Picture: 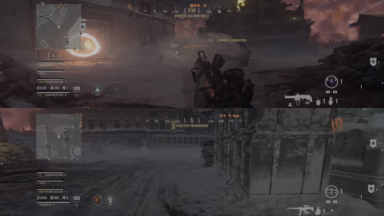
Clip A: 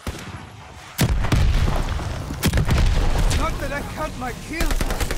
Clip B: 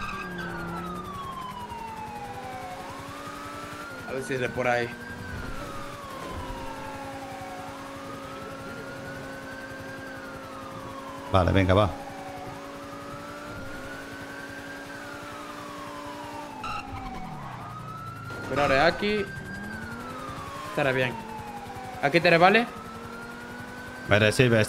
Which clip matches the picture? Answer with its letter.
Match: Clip A